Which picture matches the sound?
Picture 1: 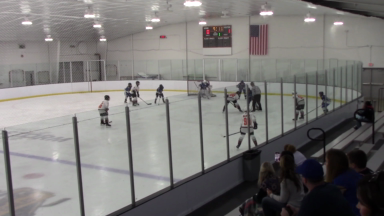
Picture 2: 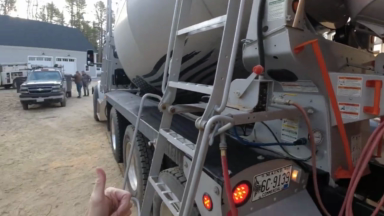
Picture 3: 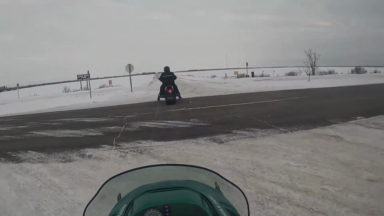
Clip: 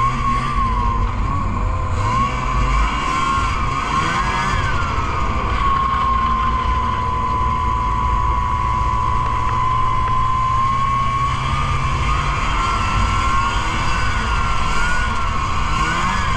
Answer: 3